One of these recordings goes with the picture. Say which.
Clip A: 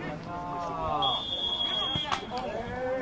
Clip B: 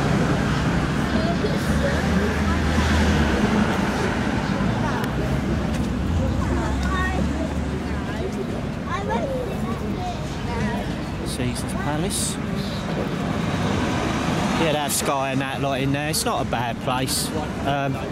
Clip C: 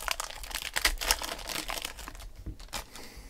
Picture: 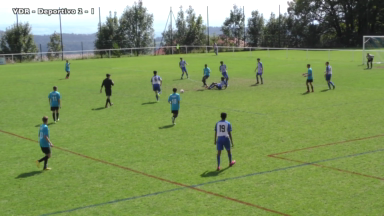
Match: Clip A